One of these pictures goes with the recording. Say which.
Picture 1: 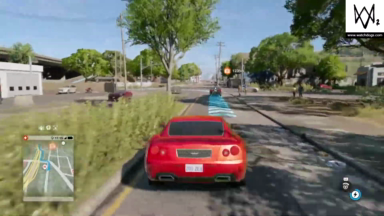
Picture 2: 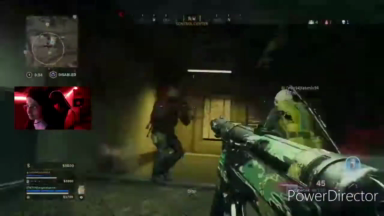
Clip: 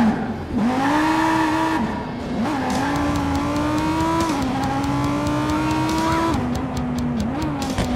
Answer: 1